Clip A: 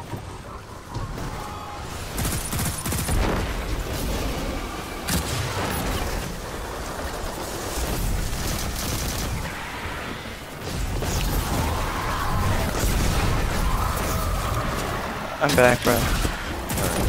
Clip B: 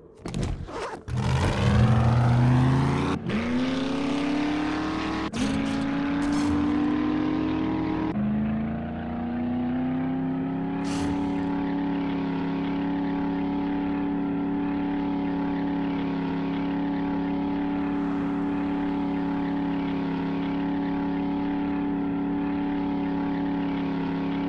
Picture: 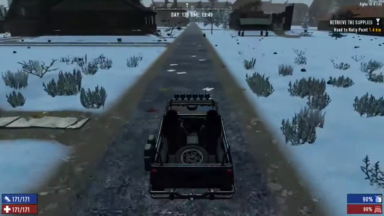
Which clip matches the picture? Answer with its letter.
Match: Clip B